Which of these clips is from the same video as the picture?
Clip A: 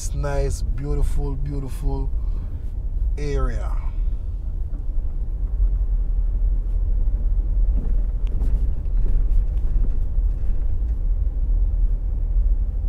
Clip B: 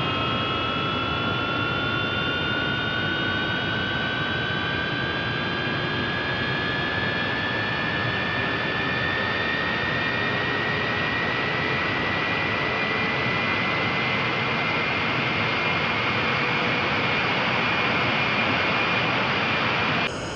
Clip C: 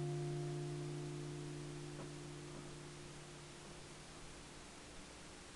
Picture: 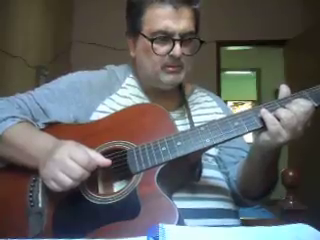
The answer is C